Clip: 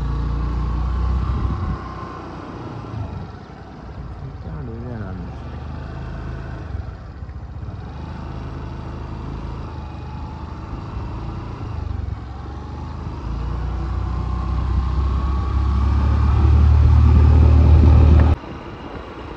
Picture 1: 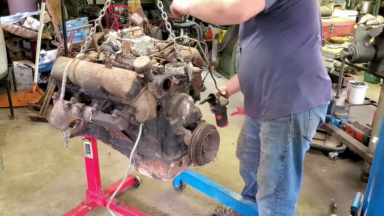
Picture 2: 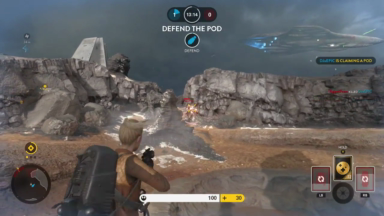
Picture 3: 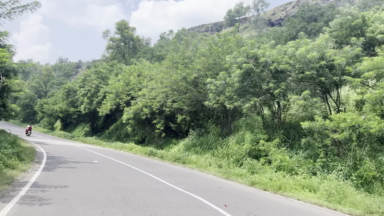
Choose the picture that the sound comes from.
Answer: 3